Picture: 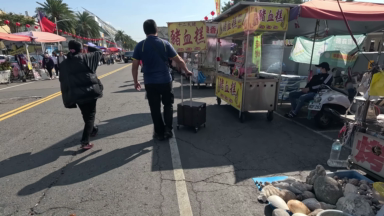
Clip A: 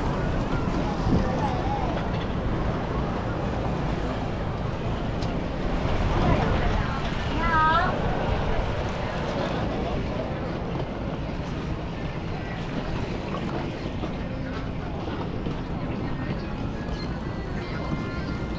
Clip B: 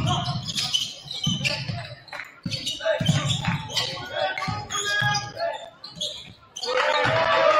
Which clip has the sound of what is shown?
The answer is A